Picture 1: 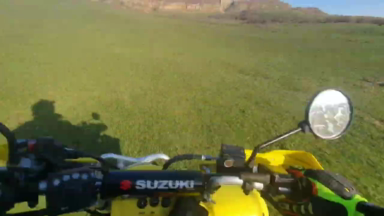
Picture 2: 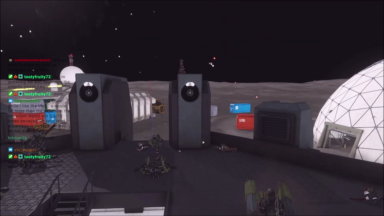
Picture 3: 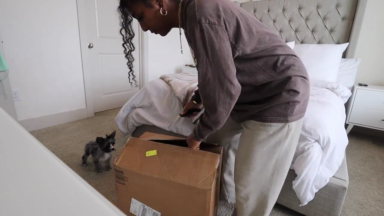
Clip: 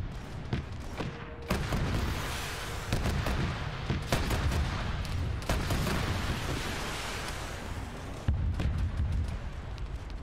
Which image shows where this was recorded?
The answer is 2